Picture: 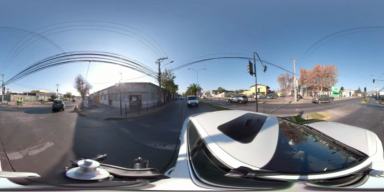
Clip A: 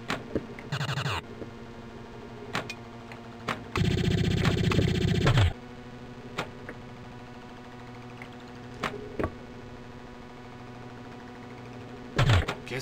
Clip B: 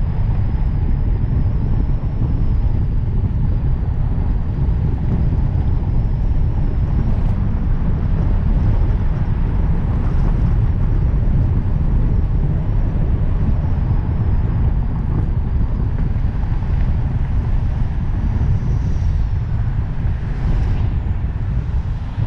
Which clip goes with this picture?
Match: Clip B